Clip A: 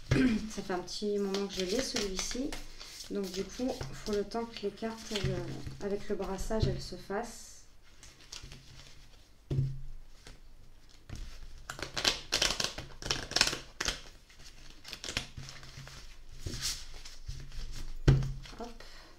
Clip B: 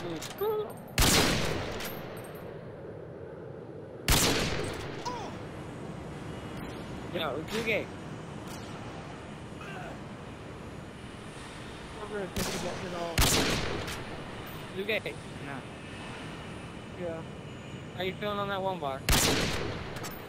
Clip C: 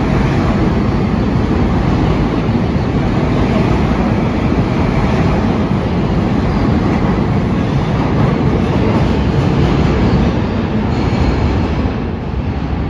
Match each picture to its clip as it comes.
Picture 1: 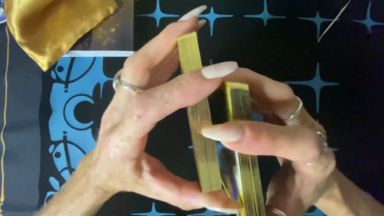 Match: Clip A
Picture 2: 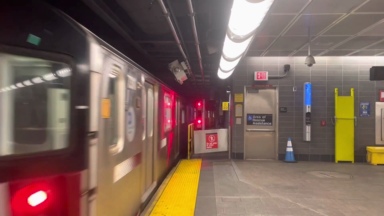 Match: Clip C